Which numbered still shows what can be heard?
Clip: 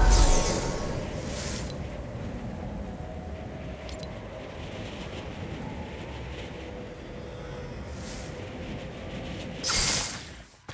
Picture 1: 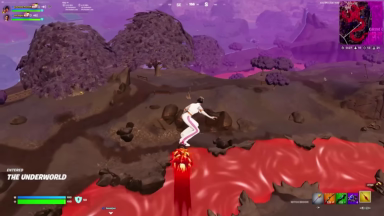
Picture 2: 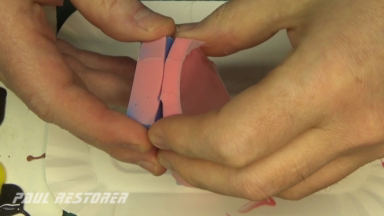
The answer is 1